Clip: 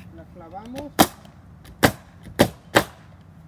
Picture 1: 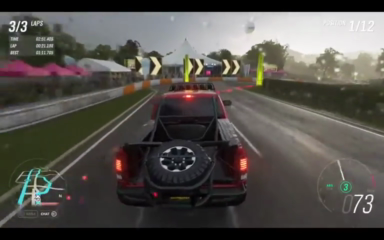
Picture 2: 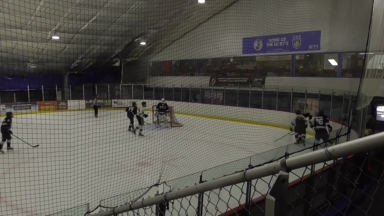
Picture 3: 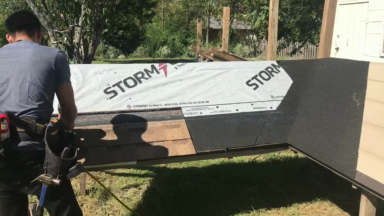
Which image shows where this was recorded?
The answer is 3